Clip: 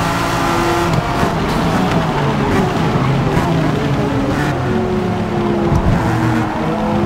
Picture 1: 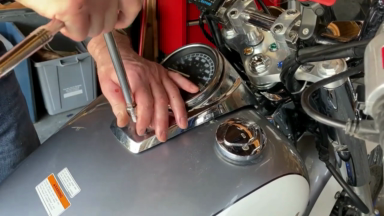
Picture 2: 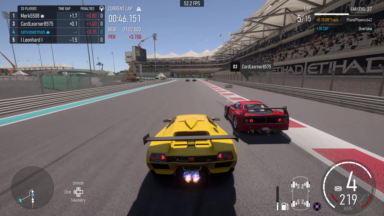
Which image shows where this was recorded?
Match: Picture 2